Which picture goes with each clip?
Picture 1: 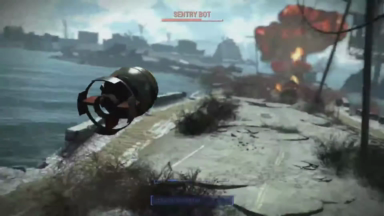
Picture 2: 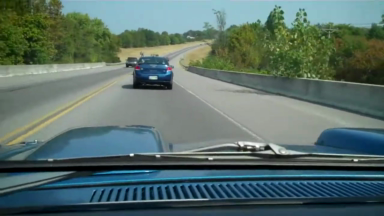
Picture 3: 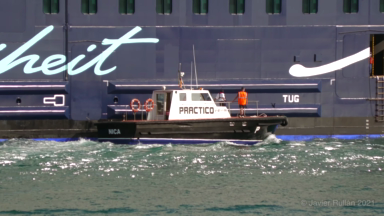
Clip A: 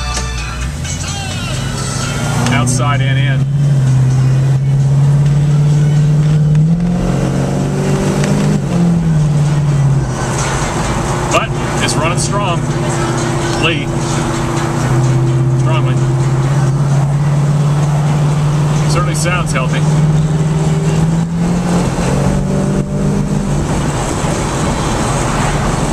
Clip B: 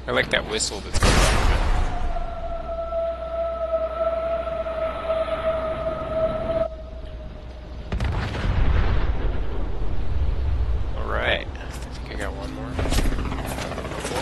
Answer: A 2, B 1